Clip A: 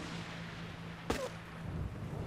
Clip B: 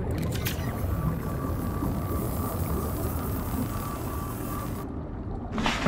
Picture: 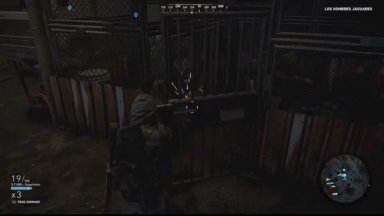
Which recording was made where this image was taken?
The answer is A